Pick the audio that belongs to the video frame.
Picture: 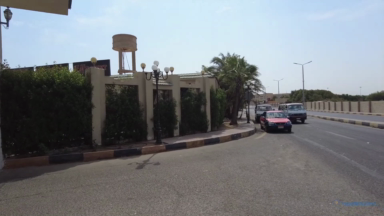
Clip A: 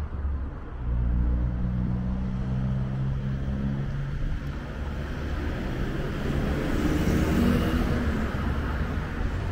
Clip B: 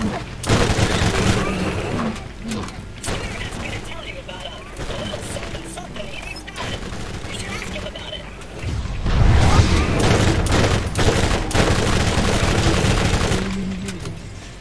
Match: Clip A